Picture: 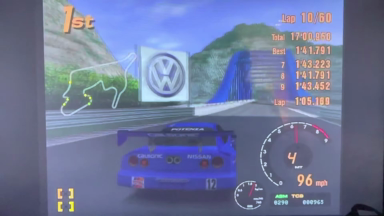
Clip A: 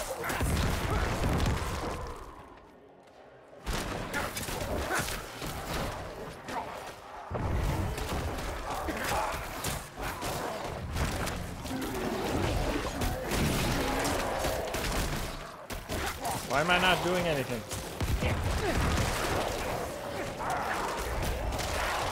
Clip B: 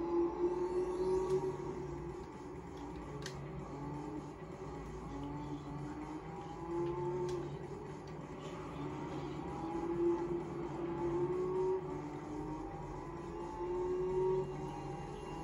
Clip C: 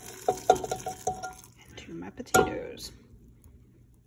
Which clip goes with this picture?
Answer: B